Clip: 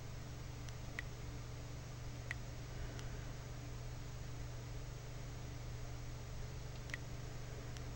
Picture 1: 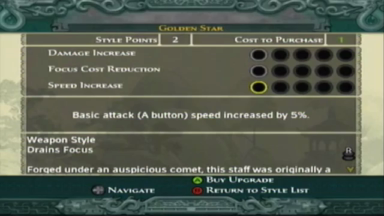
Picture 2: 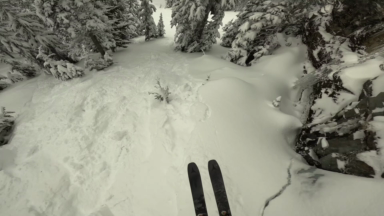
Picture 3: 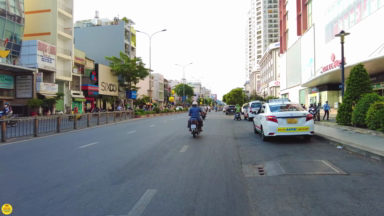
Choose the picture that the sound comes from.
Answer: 1